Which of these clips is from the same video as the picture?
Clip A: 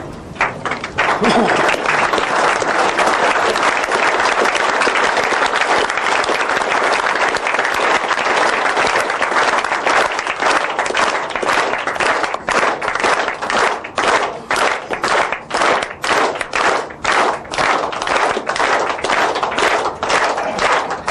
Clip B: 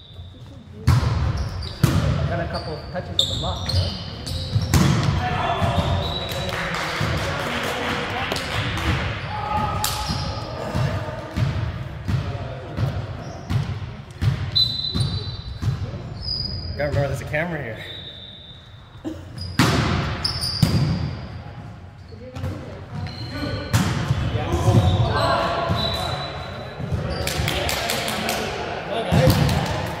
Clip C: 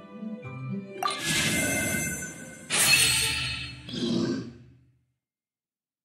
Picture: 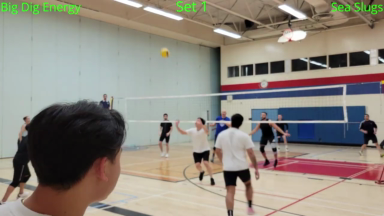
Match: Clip B